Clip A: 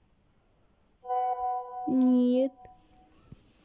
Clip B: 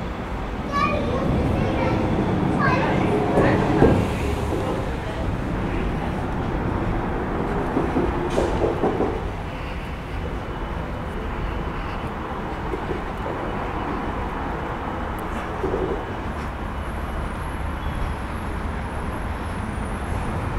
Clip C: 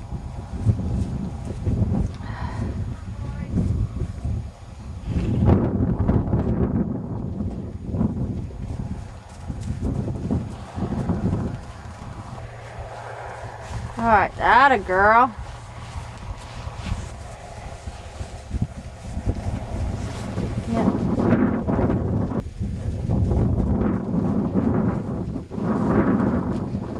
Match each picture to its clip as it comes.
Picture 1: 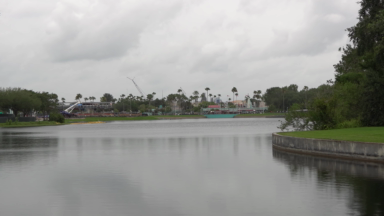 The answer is B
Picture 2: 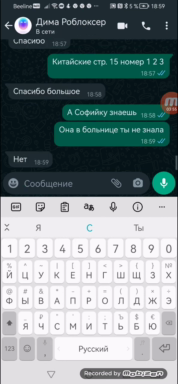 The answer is A